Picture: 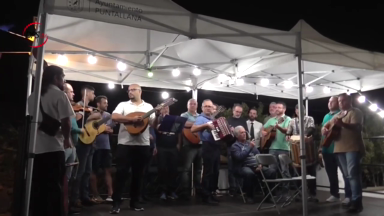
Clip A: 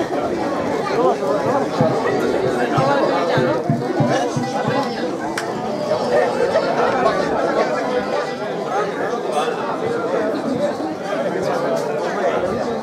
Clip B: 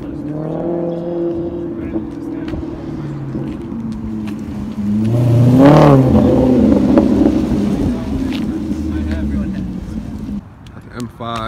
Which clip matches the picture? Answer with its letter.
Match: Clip A